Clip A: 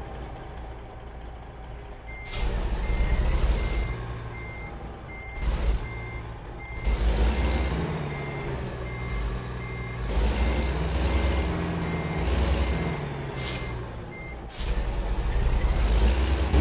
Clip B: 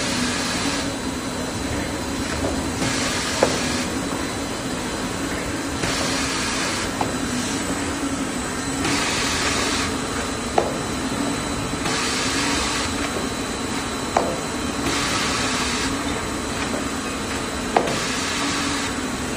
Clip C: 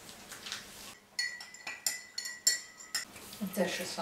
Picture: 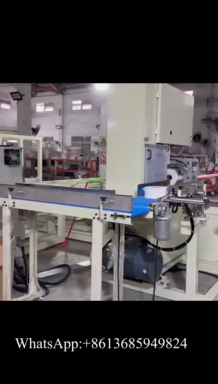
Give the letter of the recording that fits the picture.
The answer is B